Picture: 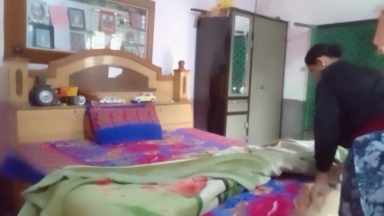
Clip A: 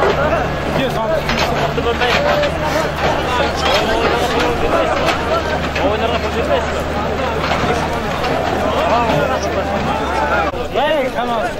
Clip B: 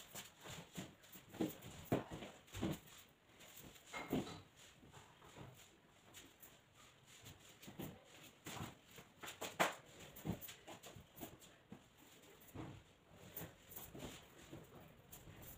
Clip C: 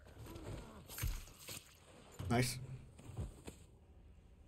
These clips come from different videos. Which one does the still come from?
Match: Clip B